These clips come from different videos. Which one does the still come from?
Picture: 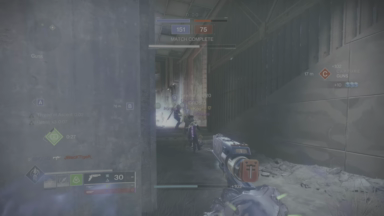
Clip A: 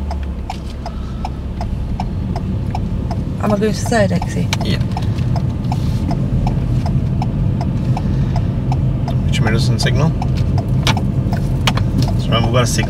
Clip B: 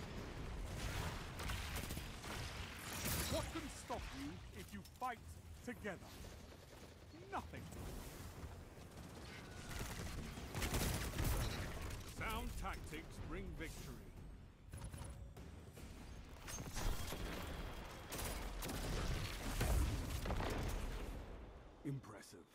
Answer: B